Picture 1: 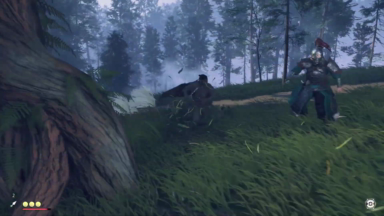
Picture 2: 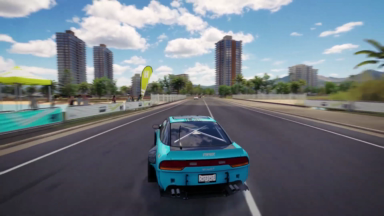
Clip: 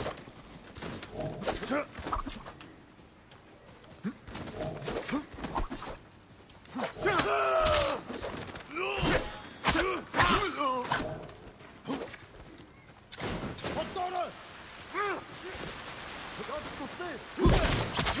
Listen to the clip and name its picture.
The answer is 1